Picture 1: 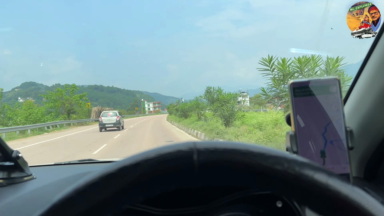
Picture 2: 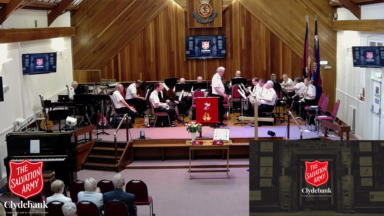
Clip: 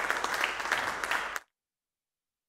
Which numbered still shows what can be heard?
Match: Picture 2